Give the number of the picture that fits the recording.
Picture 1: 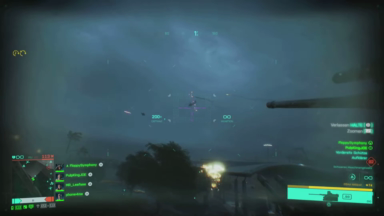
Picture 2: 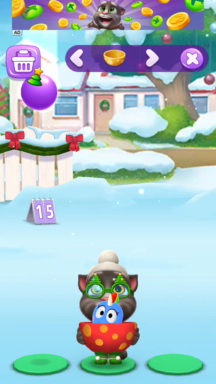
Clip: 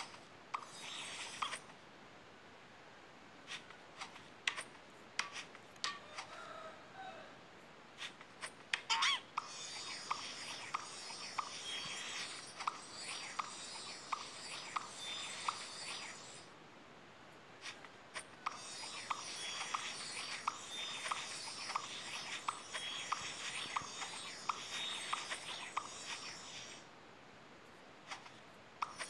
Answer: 2